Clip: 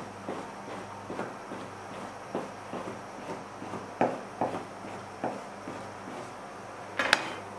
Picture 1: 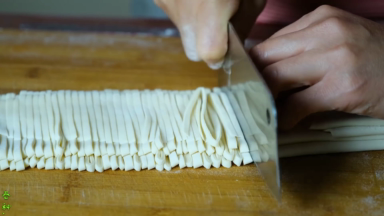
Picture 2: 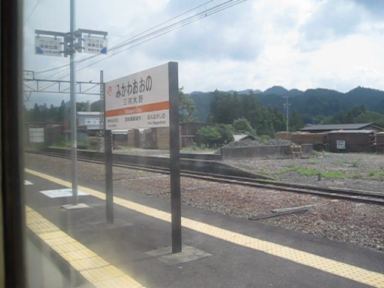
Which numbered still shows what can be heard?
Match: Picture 1